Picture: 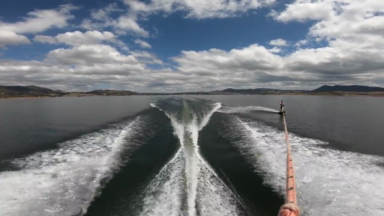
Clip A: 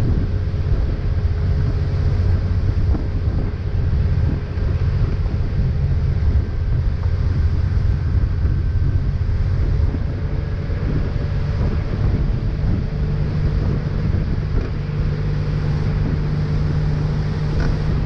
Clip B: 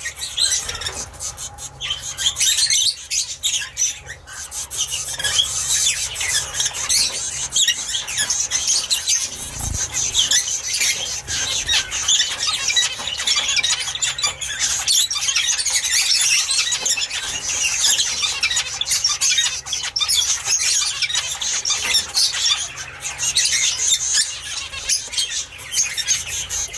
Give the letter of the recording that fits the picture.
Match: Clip A